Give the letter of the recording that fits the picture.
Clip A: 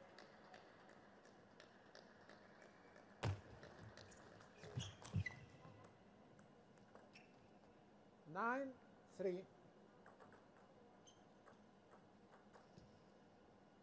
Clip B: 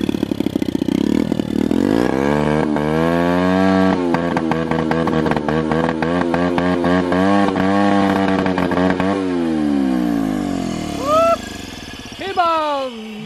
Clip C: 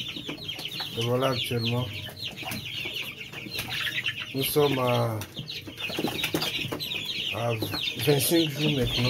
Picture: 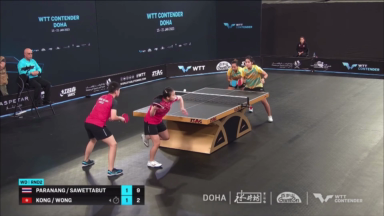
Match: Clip A